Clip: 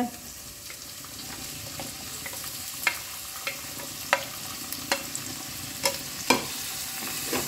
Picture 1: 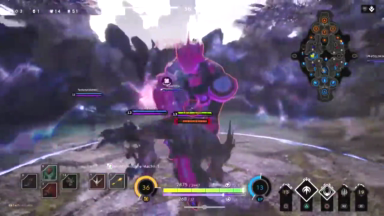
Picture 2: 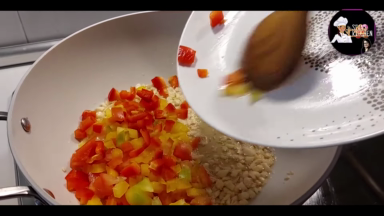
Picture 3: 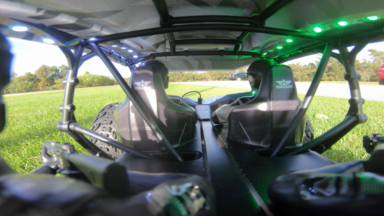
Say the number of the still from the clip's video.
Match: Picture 2